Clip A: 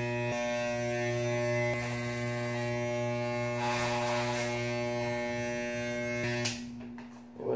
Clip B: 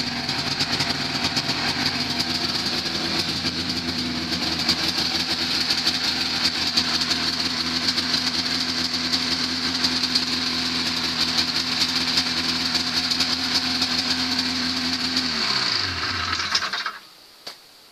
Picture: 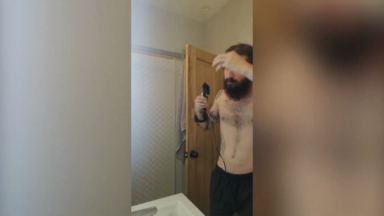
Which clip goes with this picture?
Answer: A